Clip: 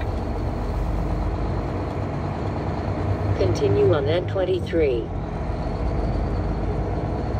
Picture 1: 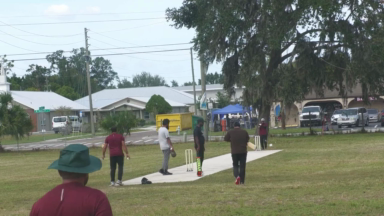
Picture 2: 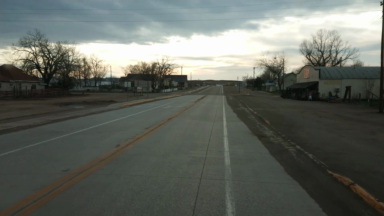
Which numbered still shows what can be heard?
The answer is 2